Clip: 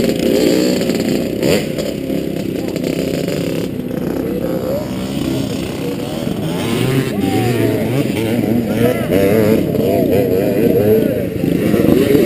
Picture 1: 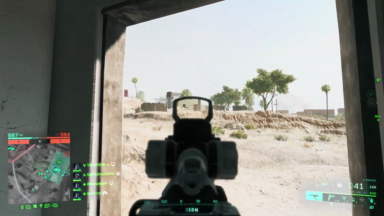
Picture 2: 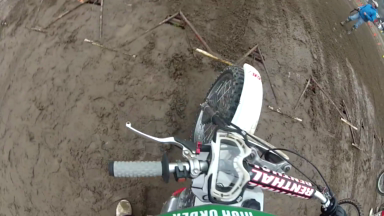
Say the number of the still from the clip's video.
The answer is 2